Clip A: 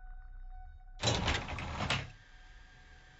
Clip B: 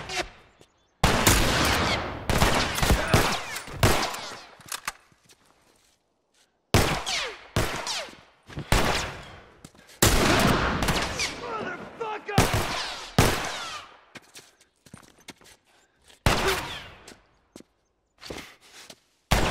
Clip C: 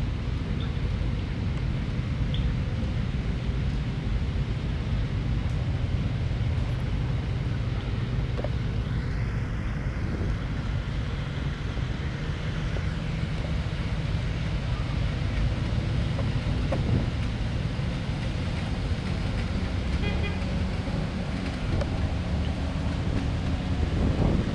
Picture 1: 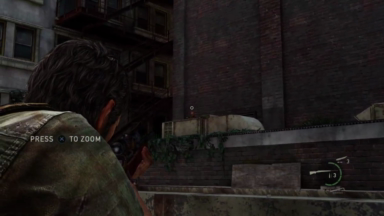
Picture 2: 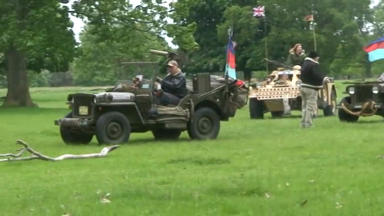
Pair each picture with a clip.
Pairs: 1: B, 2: C